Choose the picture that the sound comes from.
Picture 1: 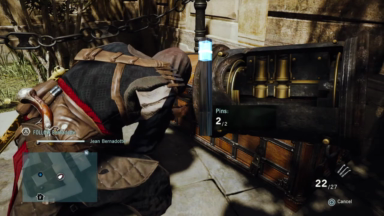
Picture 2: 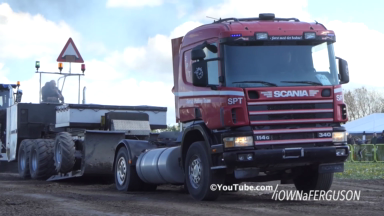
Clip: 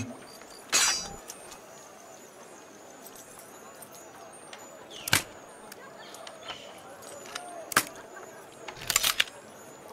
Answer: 1